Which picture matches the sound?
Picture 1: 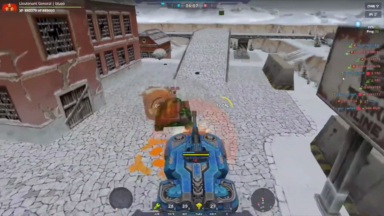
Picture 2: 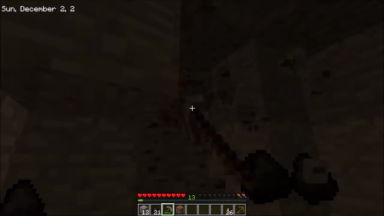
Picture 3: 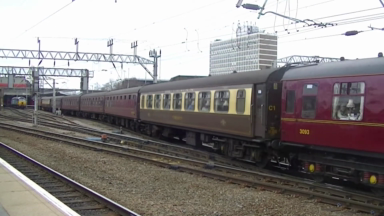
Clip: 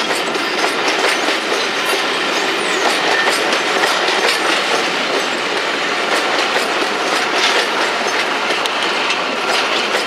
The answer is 3